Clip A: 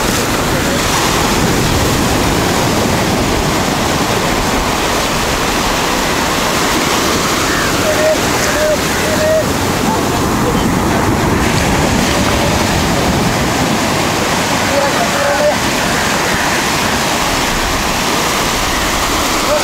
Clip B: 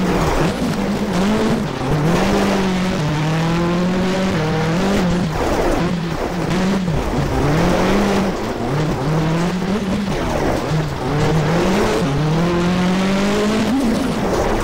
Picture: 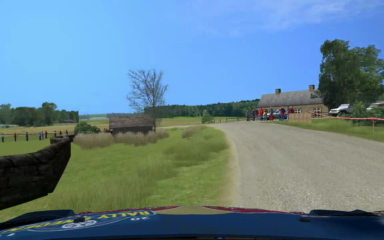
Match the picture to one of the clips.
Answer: B